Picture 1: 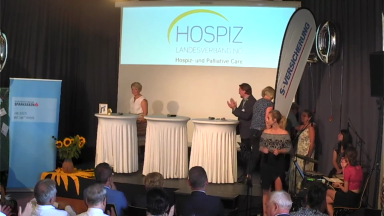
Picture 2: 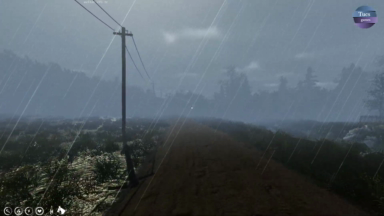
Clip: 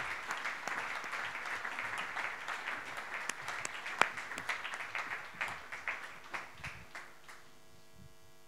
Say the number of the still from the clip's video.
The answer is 1